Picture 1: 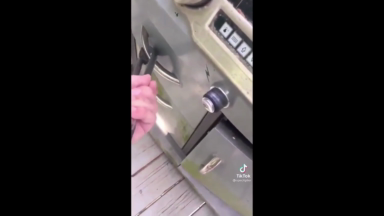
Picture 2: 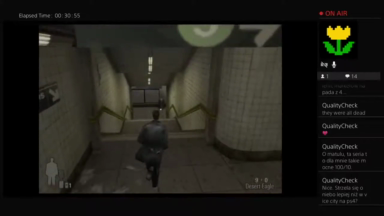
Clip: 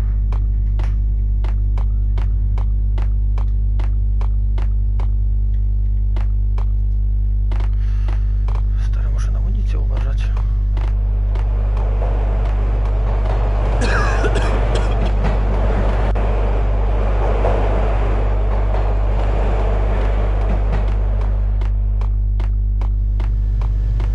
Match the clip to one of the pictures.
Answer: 2